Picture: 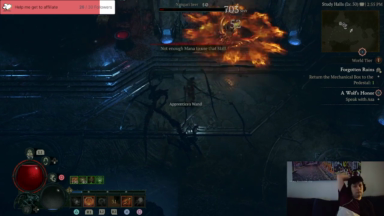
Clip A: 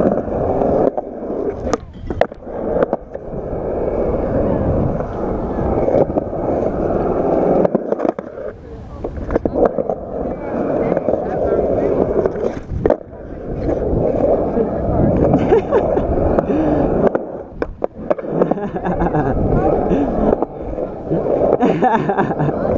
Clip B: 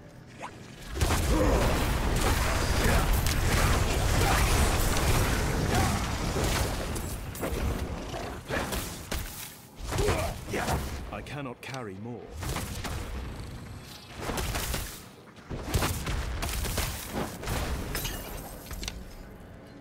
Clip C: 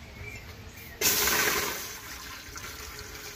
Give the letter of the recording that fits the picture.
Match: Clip B